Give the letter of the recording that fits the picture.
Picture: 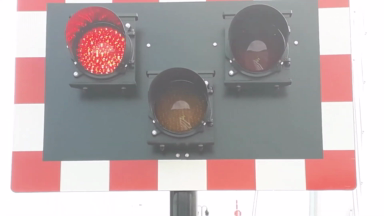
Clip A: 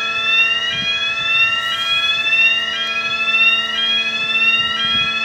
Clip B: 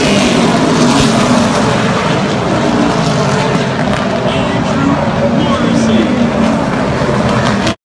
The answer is A